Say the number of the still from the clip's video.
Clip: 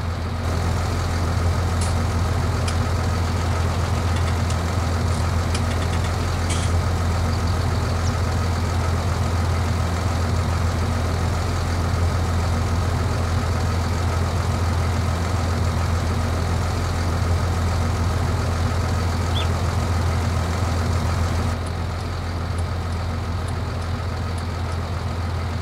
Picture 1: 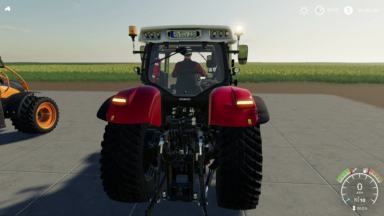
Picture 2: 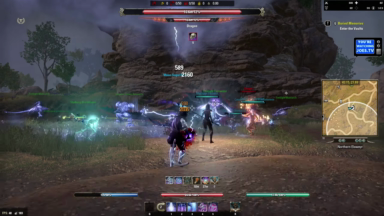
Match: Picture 1